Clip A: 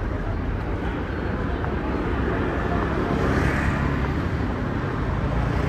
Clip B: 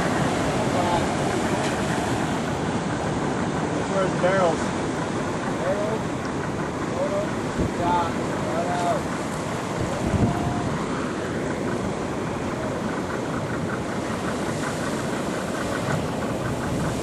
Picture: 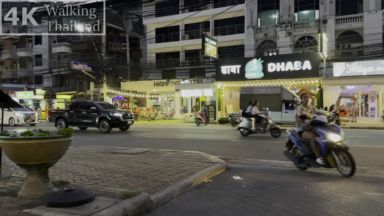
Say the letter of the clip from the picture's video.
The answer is A